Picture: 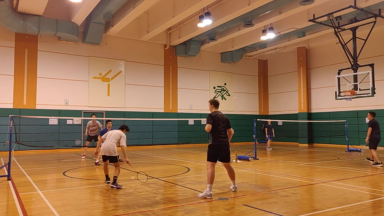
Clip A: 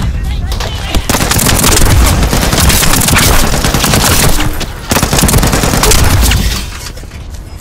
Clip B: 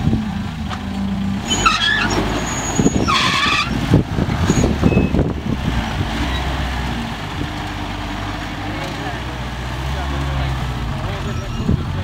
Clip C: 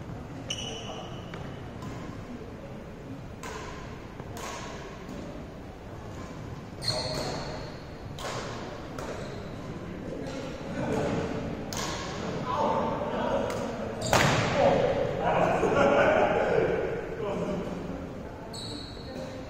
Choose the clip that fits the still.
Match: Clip C